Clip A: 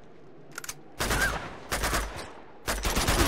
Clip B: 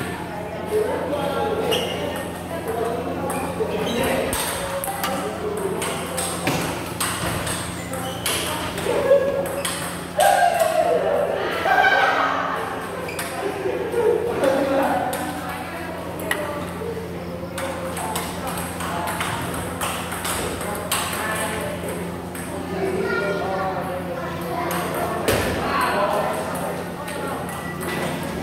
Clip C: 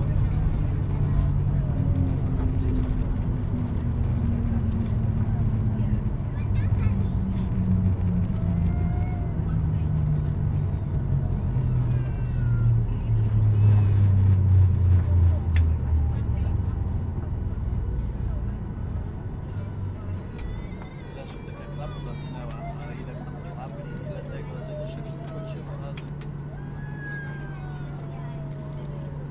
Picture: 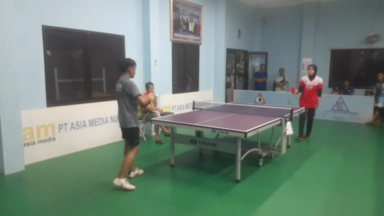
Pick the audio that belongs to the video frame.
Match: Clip B